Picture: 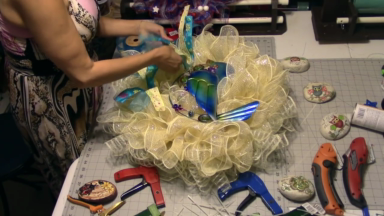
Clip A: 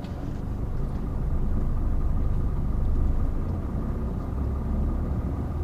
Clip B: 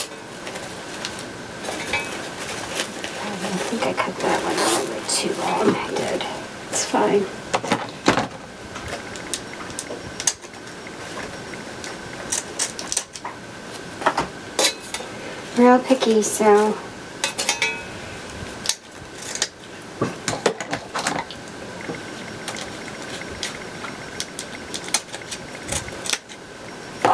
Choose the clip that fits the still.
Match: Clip B